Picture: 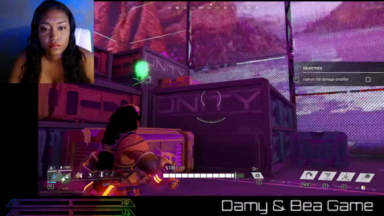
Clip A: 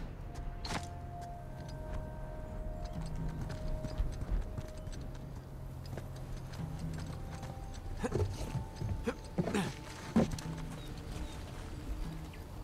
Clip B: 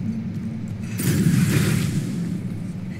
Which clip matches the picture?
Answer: B